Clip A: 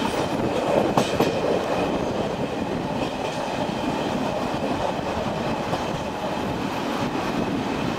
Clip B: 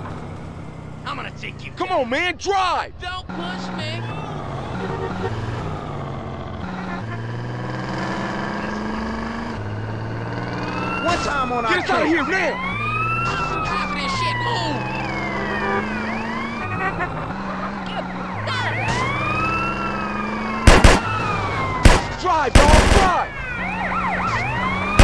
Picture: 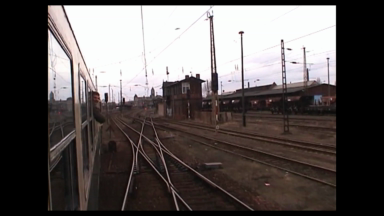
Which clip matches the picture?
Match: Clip A